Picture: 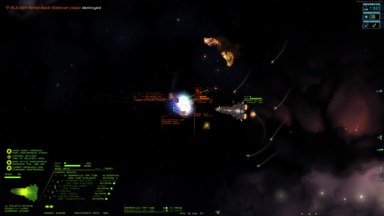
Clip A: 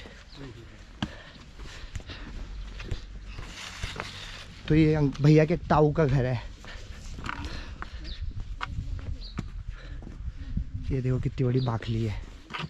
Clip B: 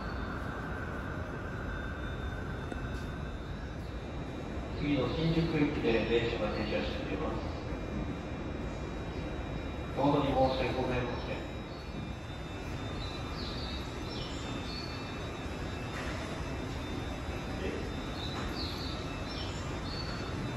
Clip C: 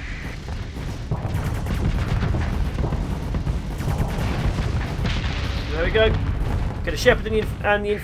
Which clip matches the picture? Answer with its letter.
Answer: C